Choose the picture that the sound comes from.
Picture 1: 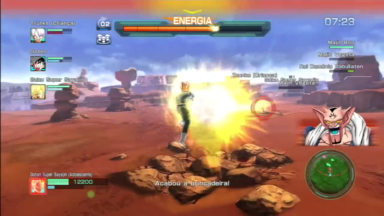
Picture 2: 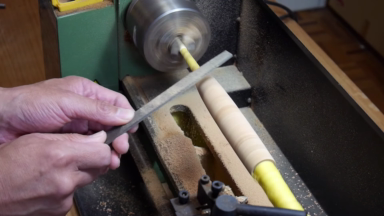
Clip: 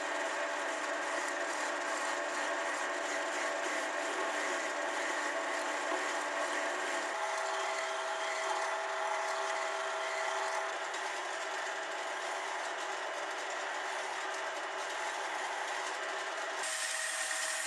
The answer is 2